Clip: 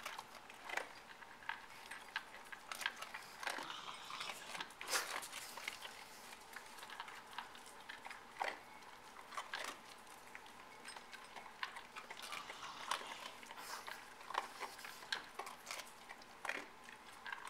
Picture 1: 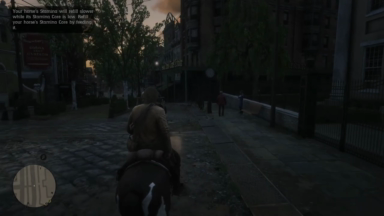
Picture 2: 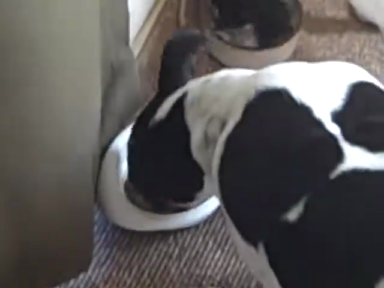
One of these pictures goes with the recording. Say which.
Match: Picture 2